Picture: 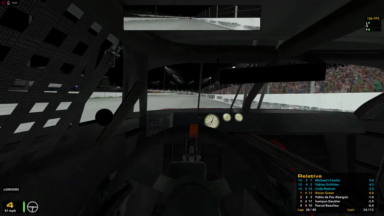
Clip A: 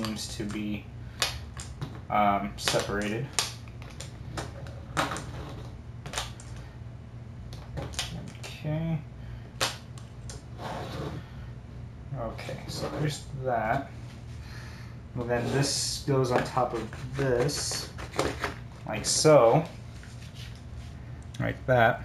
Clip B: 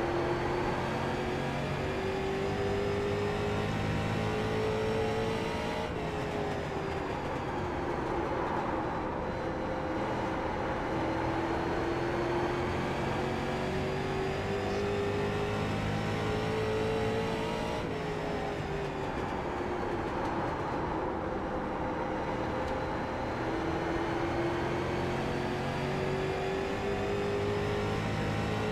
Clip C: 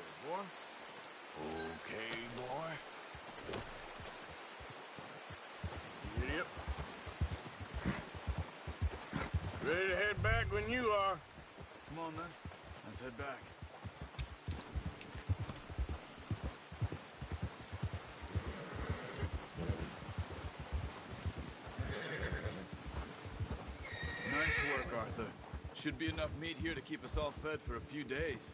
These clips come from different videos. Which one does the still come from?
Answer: B